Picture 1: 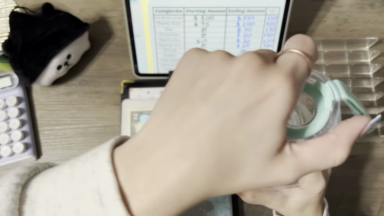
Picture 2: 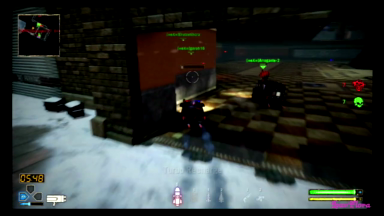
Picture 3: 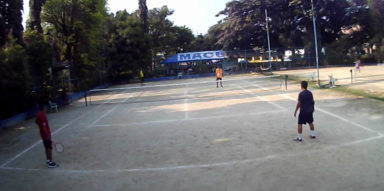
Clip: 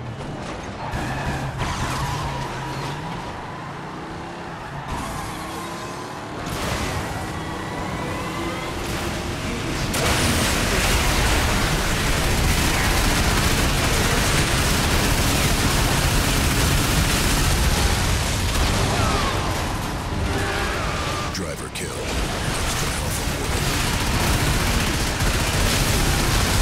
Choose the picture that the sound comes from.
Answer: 2